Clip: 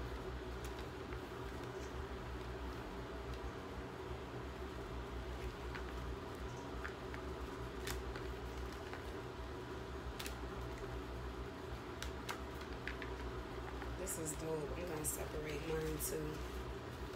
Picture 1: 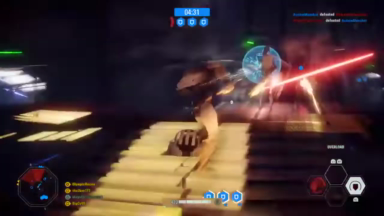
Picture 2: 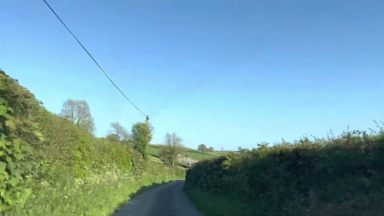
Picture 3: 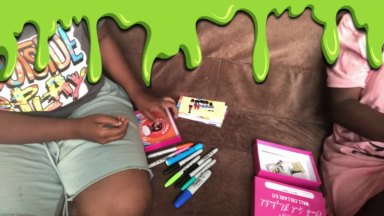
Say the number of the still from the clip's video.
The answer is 3